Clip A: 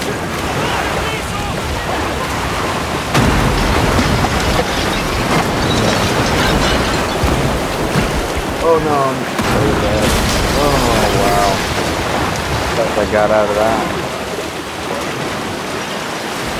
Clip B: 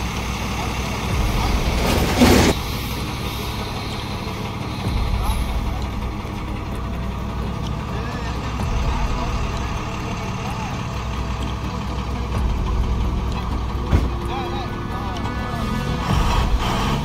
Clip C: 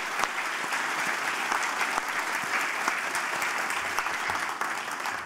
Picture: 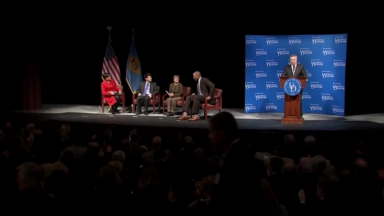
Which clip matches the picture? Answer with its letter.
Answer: C